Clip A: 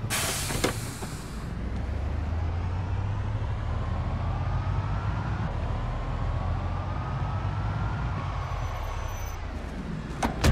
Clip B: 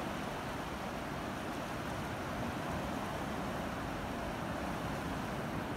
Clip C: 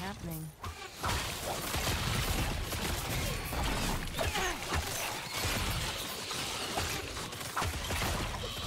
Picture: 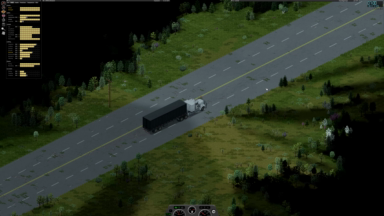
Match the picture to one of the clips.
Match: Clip A